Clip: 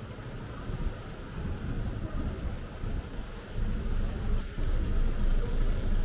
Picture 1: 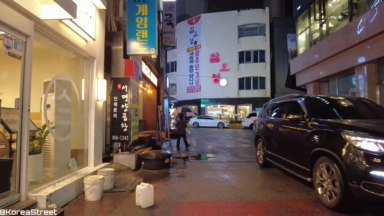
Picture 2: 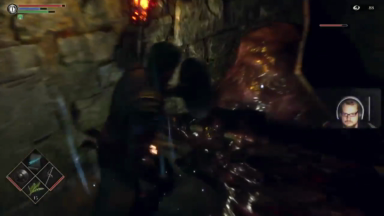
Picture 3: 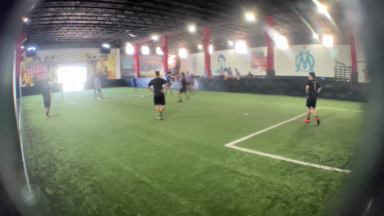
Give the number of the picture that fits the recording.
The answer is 1